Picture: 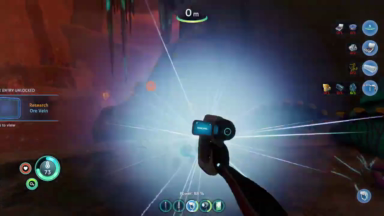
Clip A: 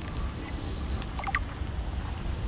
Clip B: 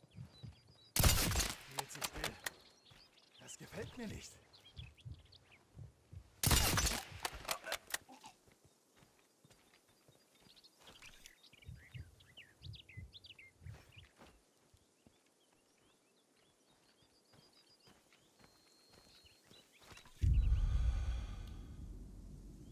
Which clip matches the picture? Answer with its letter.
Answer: A